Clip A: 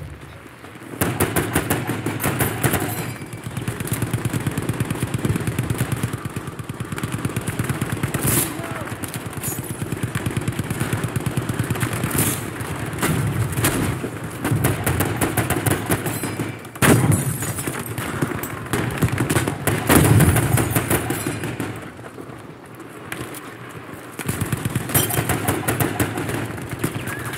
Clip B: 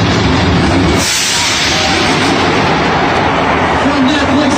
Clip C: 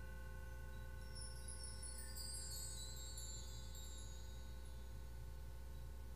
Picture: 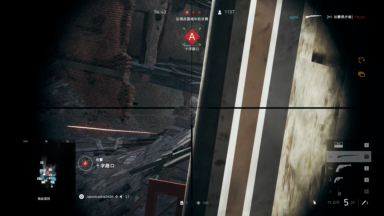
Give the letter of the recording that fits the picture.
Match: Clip A